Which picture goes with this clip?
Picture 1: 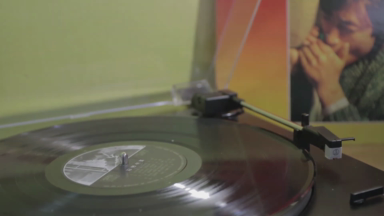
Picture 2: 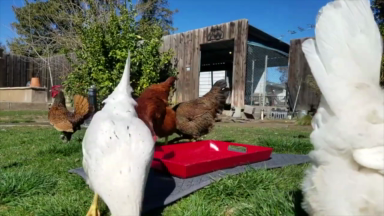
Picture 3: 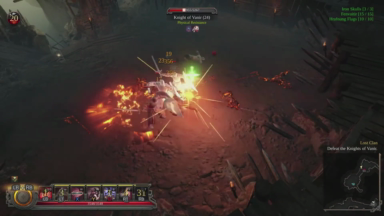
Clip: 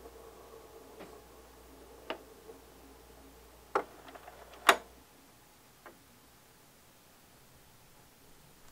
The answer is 1